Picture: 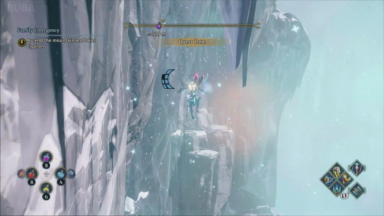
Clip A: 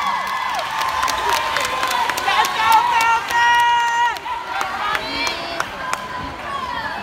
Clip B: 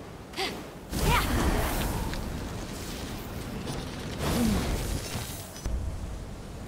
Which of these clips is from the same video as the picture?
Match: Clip B